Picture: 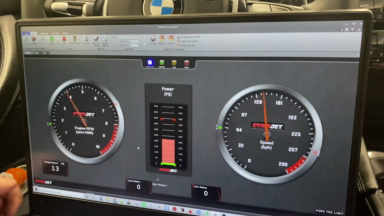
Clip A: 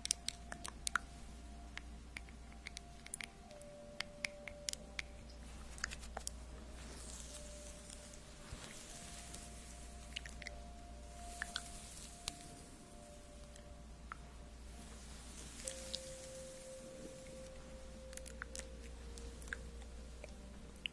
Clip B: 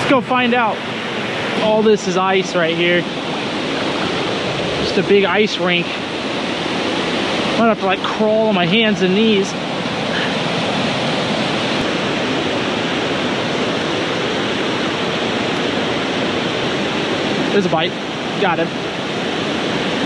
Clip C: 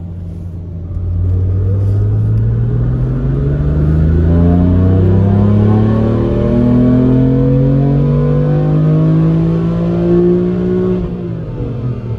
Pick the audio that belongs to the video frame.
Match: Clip C